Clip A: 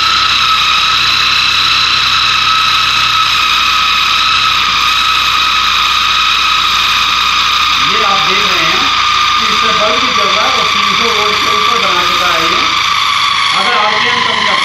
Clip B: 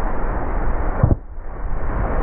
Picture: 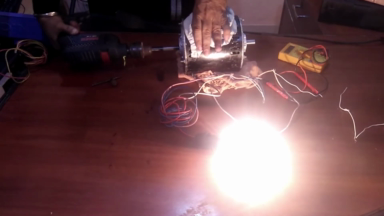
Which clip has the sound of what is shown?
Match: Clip A